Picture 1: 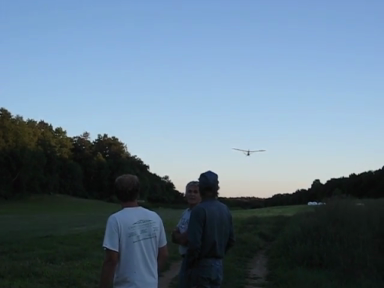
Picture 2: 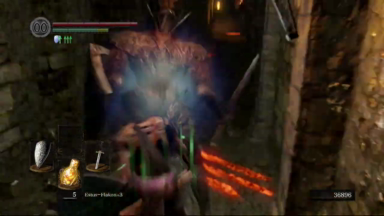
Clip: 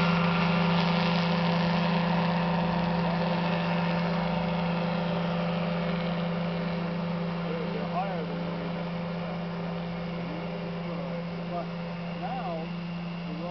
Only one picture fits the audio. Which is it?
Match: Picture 1